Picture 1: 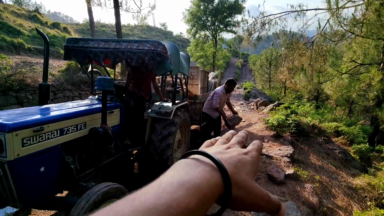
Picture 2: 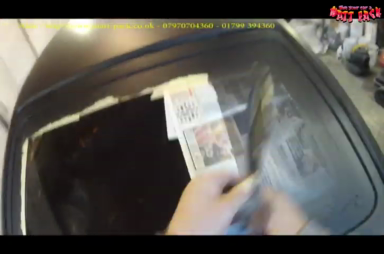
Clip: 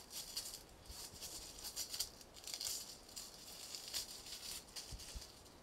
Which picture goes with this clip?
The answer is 2